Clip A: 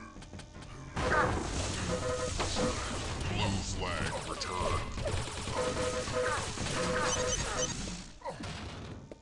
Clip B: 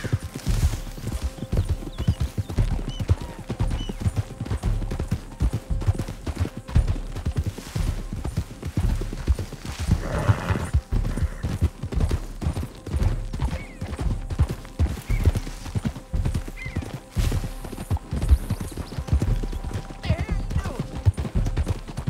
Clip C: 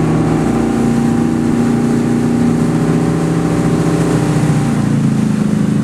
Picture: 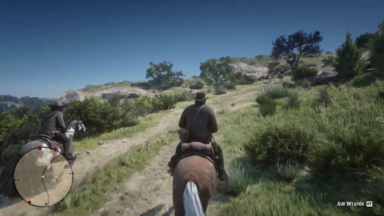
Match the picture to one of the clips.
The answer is B